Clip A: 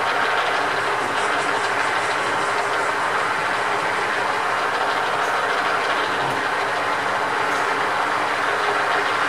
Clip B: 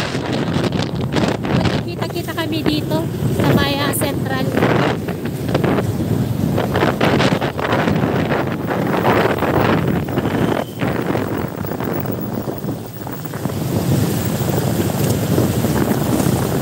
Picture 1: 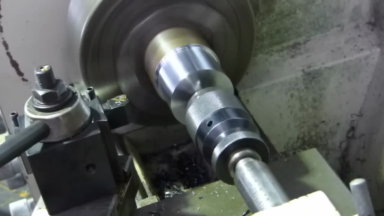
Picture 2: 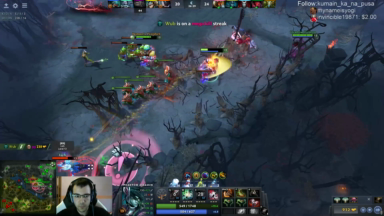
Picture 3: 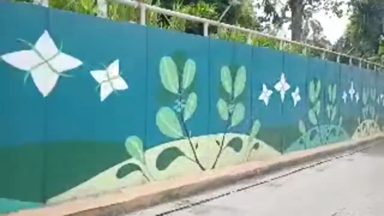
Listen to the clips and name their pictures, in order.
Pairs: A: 1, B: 3